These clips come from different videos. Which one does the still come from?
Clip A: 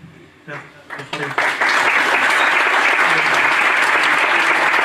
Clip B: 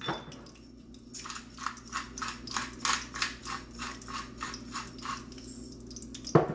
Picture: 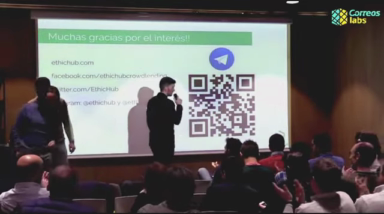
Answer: A